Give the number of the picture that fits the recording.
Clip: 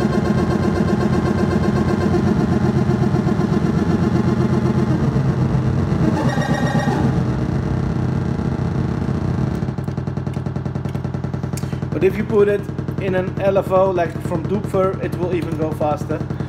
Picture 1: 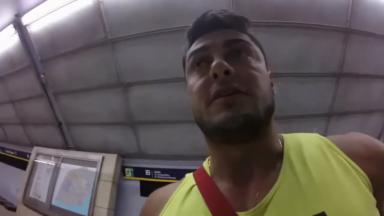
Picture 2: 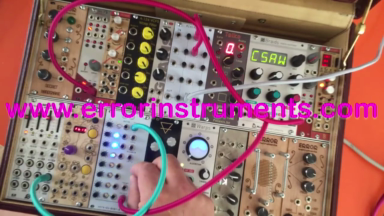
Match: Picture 2